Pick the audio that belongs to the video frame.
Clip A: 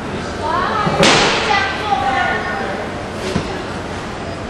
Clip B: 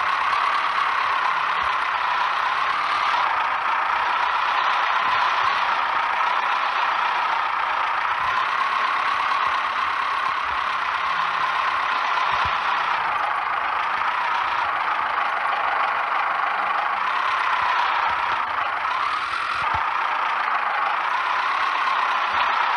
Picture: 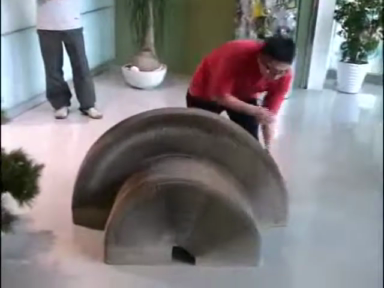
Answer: A